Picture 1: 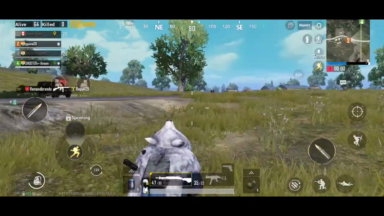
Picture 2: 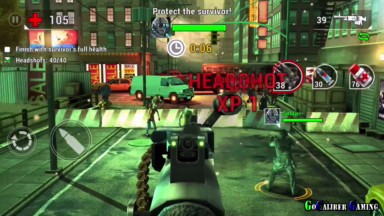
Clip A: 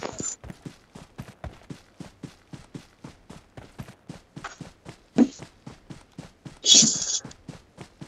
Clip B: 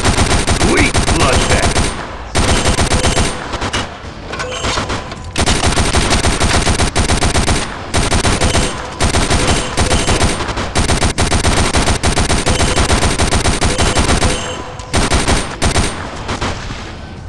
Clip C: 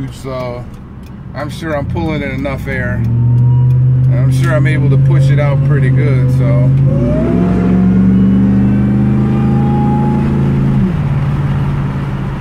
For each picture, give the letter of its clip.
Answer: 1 A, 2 B